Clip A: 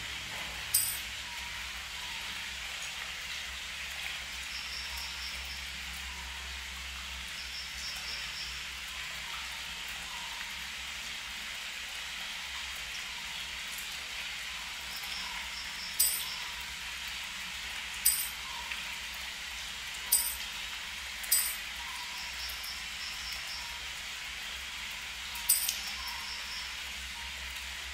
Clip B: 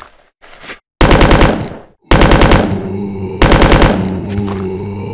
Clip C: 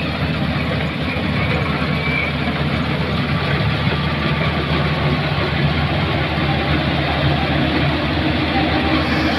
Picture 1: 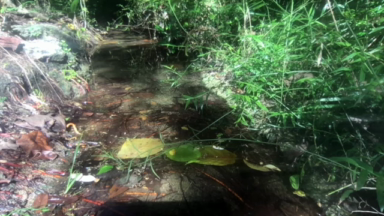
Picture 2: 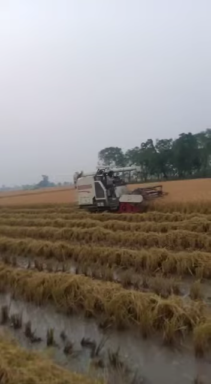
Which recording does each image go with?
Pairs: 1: A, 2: C